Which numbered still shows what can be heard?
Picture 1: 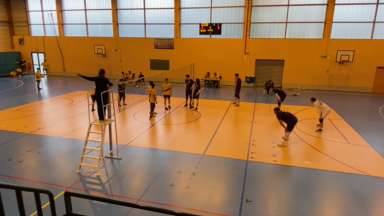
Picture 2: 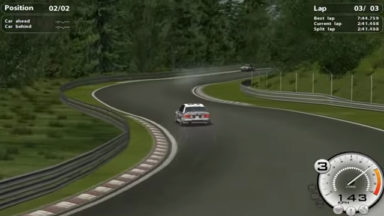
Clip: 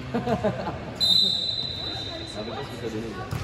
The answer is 1